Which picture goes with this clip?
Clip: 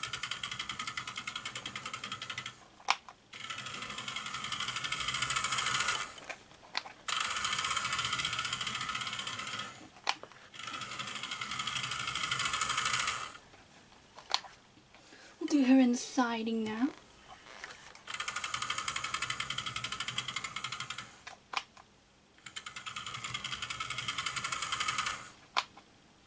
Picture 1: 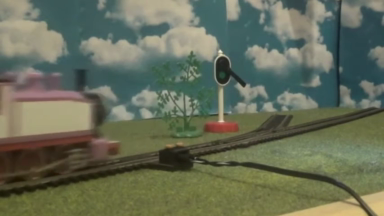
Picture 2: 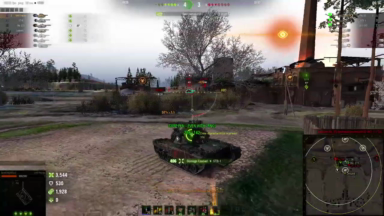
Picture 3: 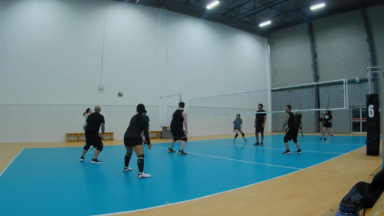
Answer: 1